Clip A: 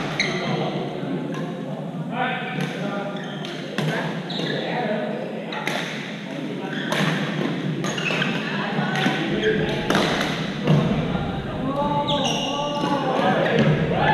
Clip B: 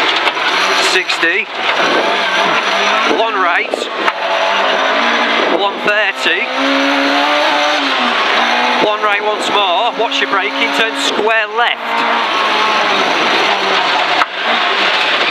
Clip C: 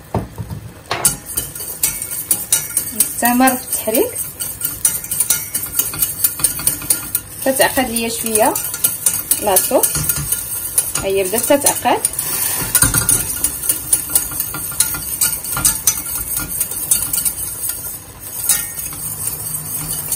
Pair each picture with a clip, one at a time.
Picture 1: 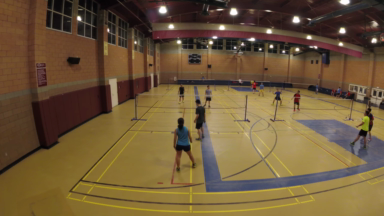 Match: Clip A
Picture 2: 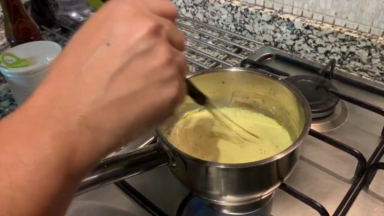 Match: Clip C